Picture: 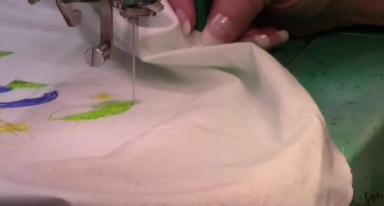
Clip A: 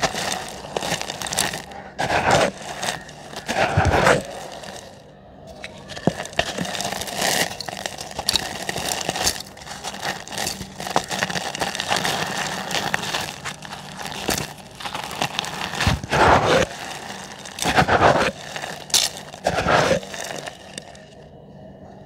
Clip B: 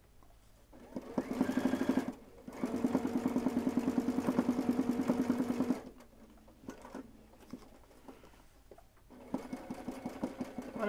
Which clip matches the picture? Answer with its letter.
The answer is B